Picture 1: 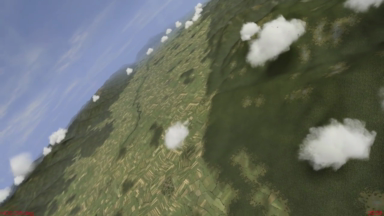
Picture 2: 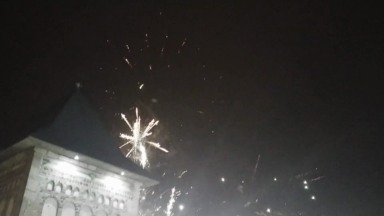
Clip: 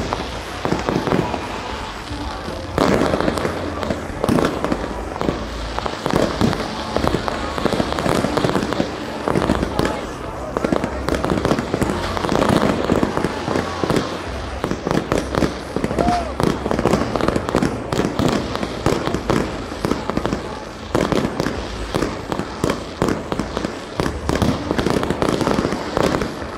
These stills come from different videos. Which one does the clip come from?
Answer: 2